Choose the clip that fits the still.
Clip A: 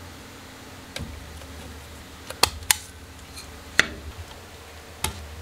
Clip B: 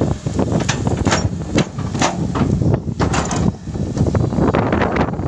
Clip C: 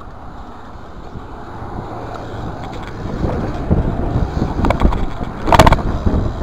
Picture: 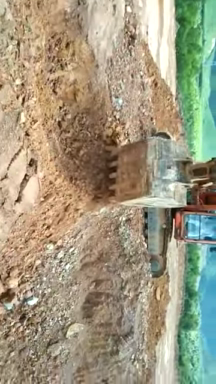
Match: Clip B